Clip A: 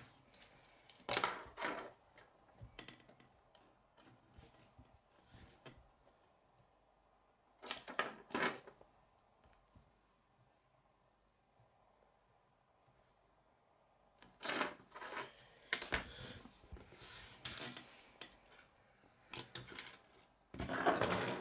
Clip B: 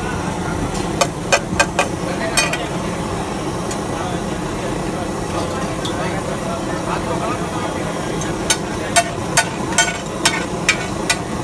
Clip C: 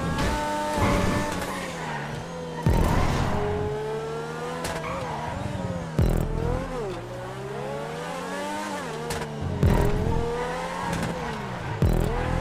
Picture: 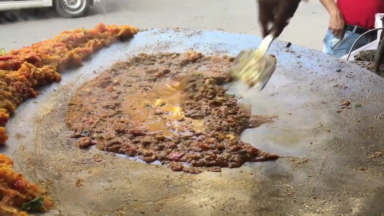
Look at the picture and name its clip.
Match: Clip B